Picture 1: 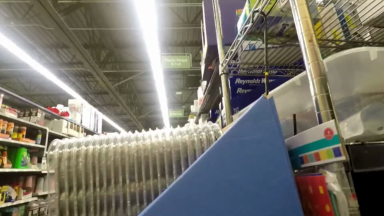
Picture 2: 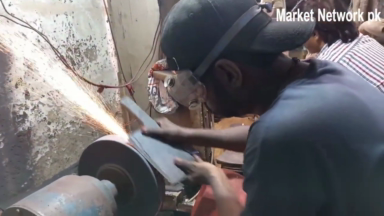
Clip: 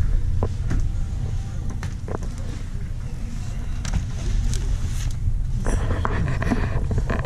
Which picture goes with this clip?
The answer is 1